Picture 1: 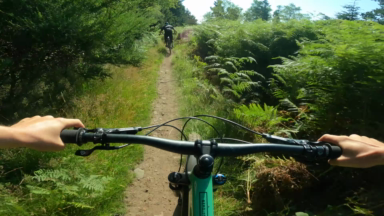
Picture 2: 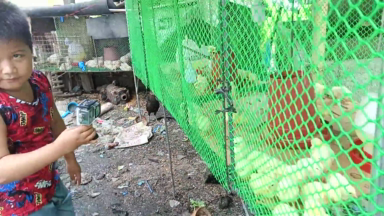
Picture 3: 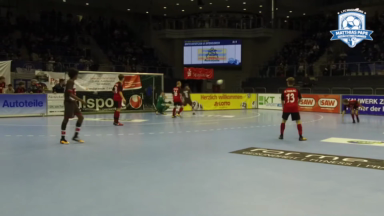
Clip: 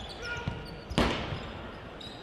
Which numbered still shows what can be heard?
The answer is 3